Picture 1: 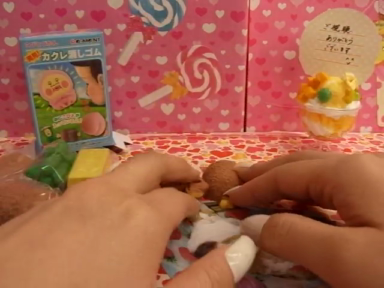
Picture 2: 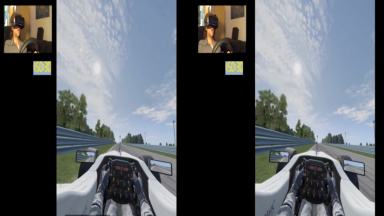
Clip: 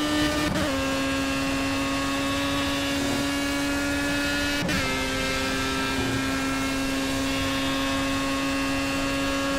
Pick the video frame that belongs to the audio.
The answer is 2